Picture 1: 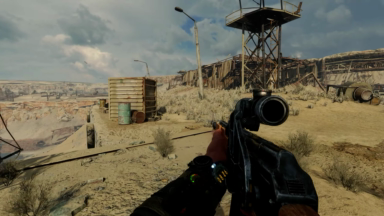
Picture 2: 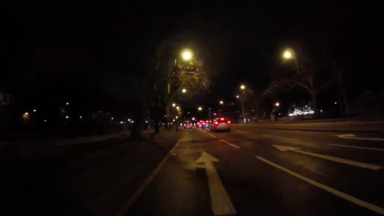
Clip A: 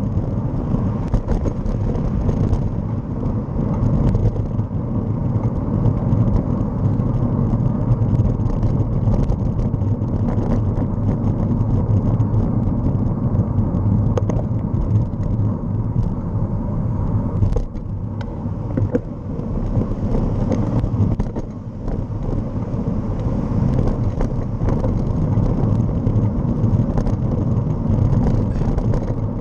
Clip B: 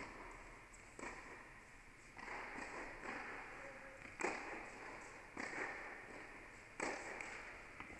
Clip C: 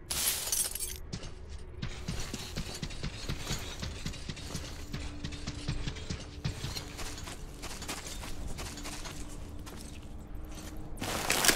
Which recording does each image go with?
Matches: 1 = C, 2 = A